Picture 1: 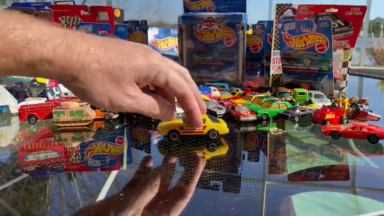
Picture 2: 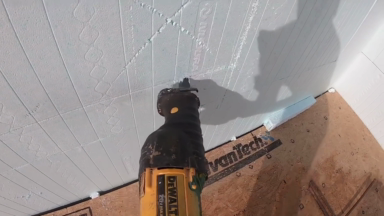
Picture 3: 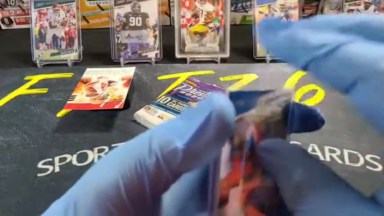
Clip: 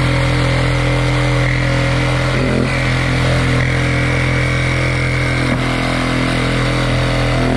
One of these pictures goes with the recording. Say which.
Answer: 2